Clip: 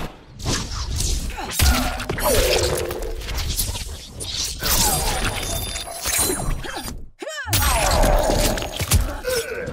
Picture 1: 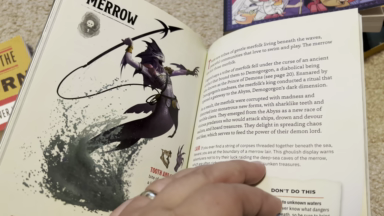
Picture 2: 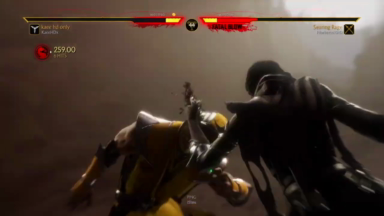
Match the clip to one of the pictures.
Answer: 2